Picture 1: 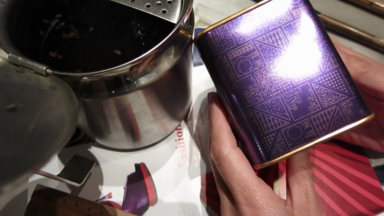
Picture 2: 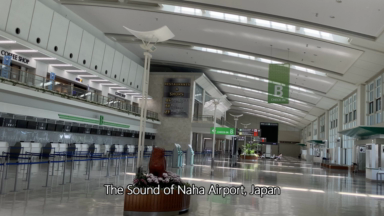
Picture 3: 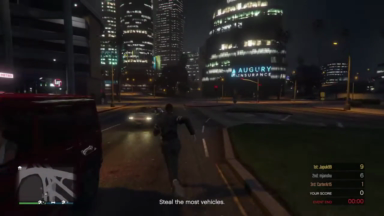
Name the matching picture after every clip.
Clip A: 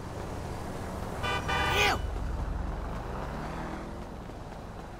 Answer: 3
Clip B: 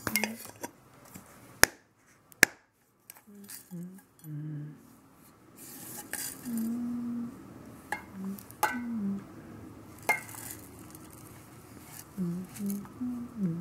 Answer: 1